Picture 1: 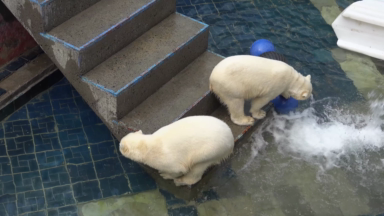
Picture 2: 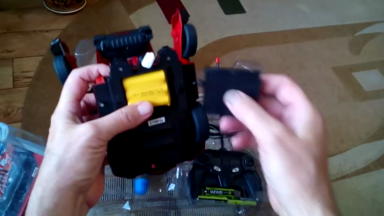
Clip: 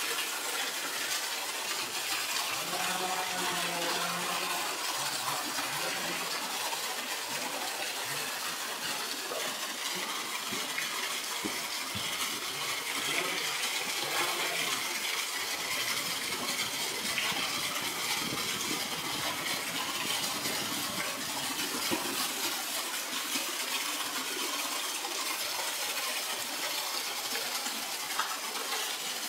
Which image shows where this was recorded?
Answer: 1